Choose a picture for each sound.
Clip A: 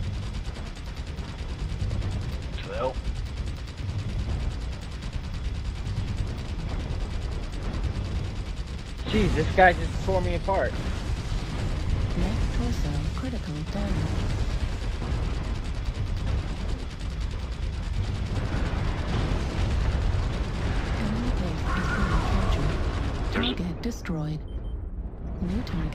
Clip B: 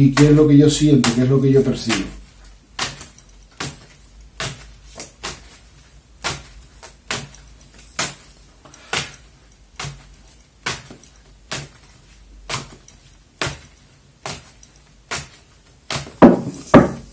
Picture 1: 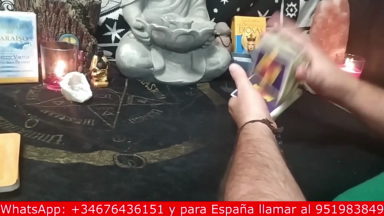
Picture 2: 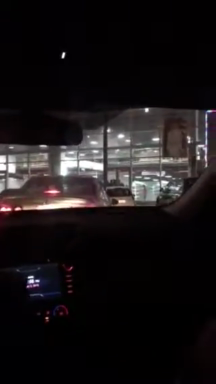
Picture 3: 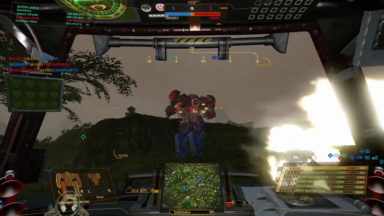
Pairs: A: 3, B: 1